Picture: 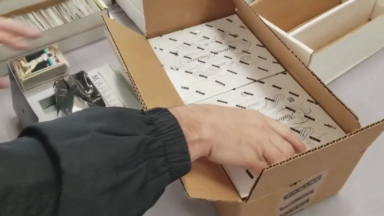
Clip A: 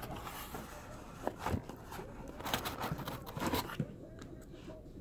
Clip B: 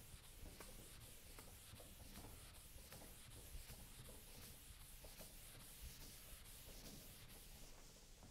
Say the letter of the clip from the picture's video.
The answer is A